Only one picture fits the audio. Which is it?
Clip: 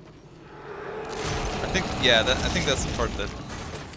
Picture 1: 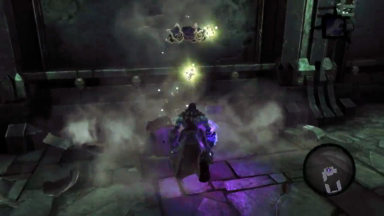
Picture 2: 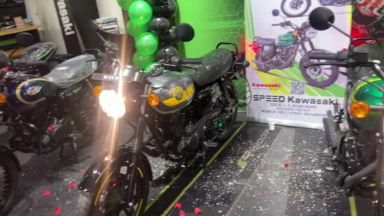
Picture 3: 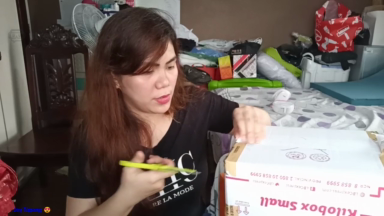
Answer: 1